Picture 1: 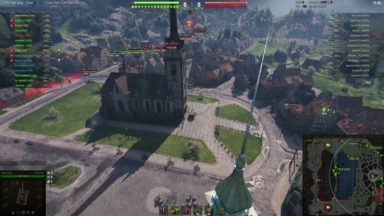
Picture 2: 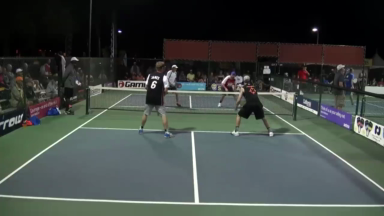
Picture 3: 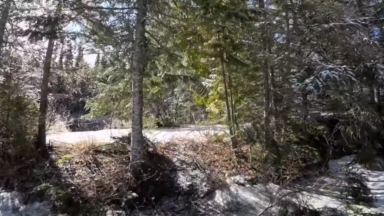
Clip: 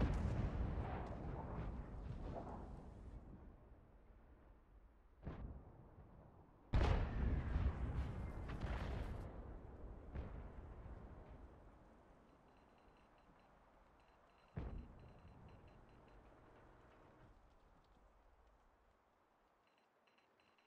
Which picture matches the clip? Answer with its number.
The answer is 1